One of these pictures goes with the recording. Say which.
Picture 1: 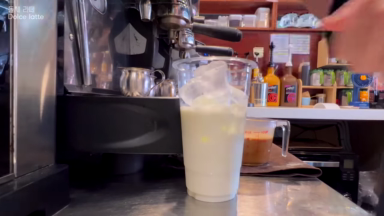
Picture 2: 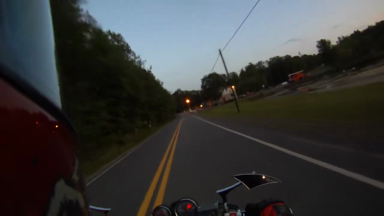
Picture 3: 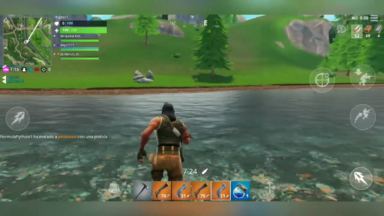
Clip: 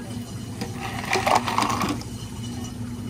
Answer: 1